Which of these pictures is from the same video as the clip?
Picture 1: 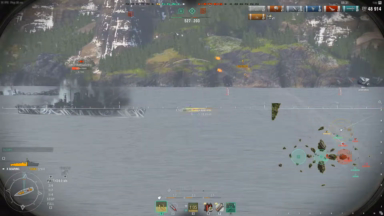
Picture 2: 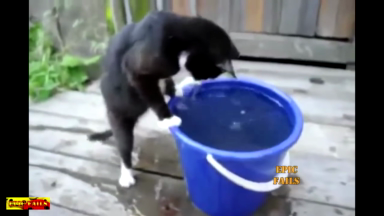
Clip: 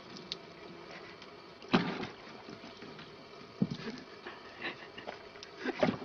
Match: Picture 2